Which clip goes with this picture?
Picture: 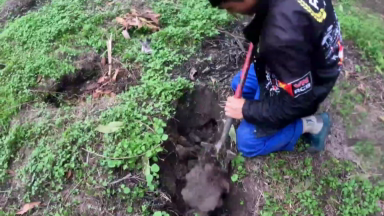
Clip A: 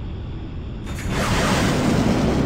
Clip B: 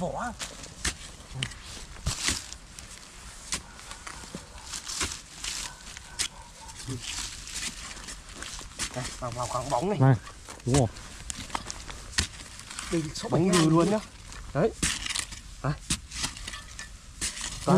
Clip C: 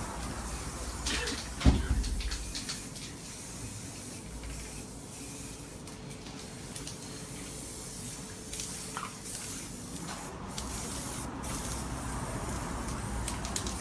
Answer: B